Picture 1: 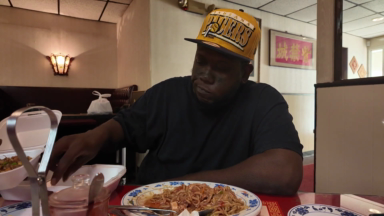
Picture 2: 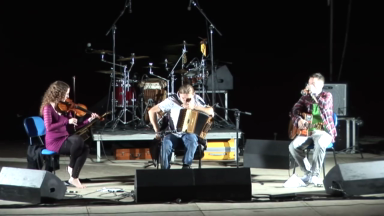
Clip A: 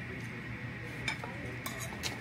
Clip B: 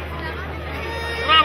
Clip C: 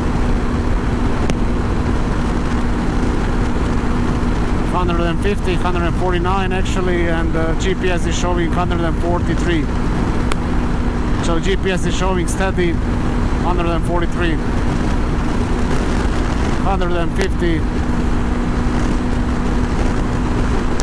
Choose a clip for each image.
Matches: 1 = A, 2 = B